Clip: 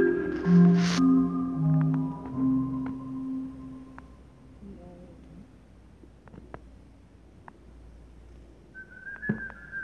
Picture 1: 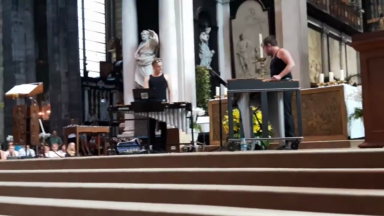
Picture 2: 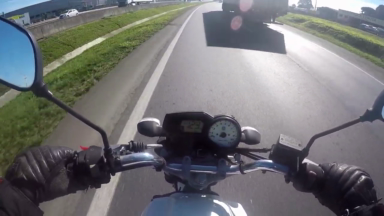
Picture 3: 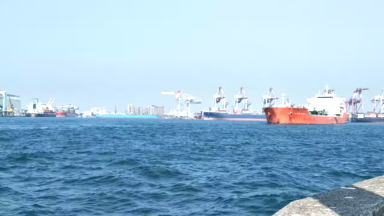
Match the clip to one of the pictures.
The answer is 1